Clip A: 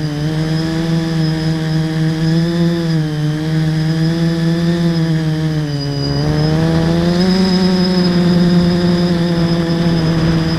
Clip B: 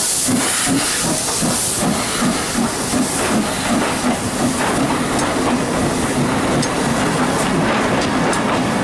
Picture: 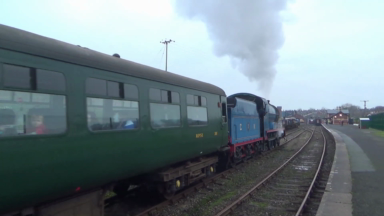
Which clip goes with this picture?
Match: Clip B